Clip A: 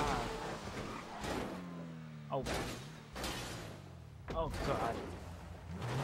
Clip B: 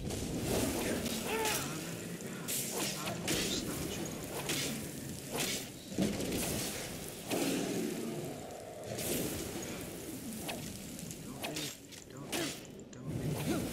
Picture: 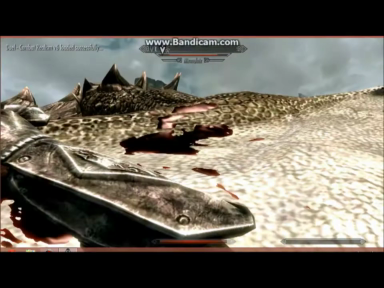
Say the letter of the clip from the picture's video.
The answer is B